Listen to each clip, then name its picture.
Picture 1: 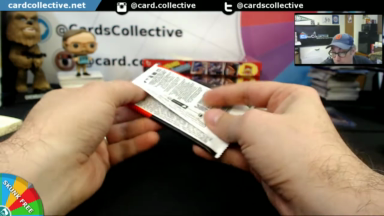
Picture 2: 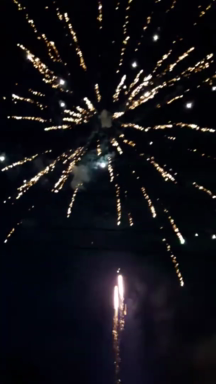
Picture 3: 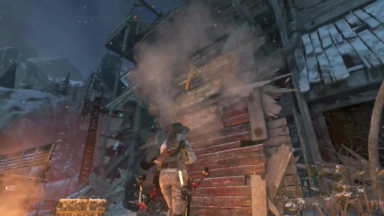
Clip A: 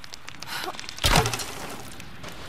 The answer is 3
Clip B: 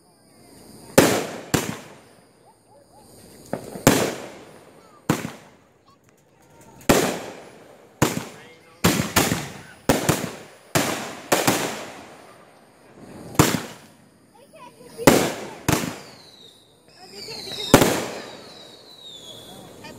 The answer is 2